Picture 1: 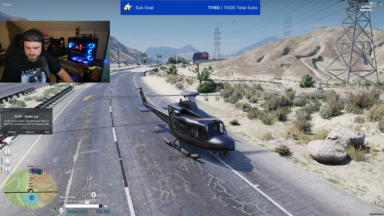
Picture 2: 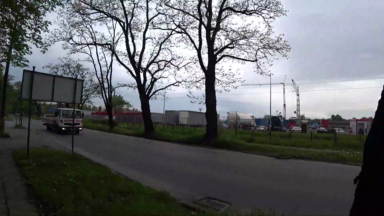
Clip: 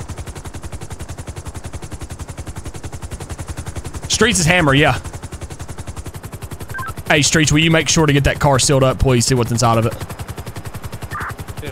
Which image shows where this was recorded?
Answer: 1